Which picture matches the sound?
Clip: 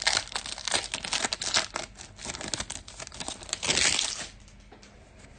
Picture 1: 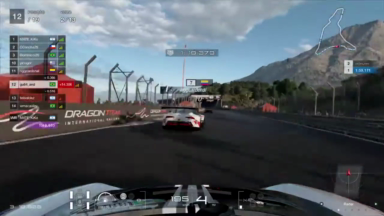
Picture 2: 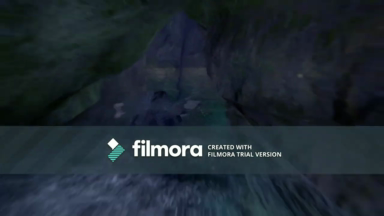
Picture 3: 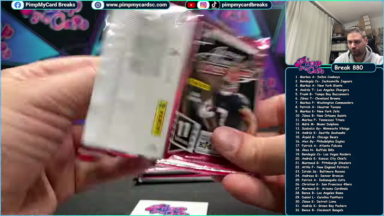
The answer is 3